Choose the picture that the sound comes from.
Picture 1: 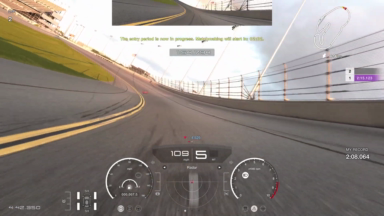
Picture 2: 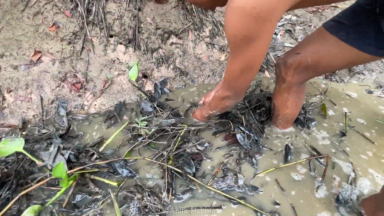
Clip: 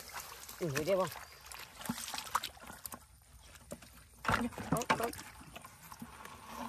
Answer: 2